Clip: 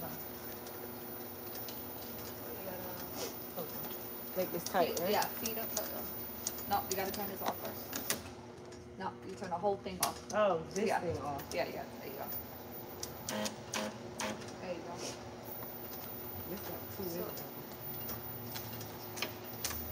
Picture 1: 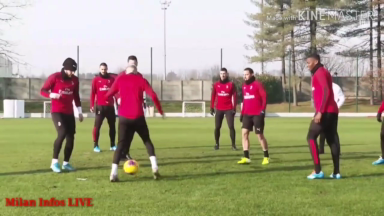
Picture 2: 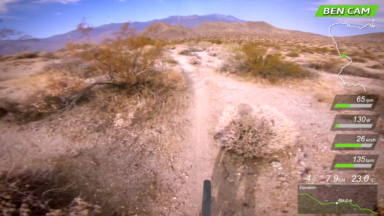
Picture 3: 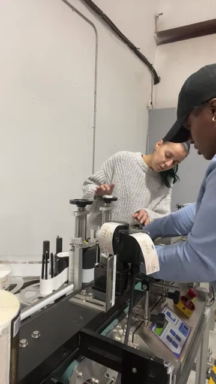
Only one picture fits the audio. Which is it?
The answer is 3